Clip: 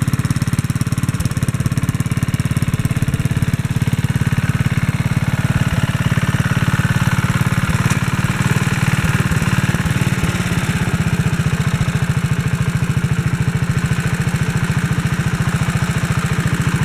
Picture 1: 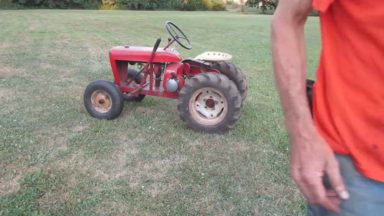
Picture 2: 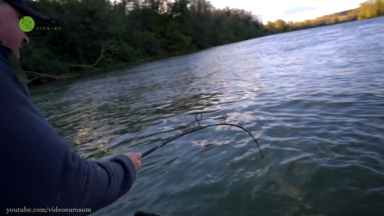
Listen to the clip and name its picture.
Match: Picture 1